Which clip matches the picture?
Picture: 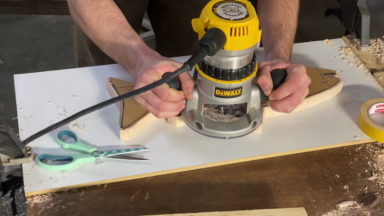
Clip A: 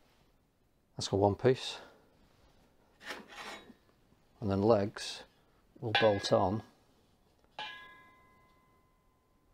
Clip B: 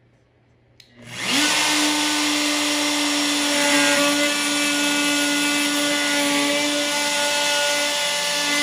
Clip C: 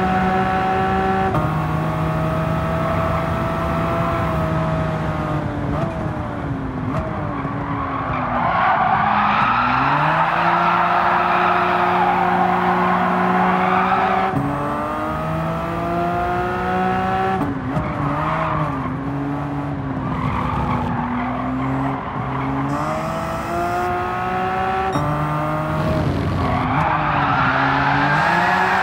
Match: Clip B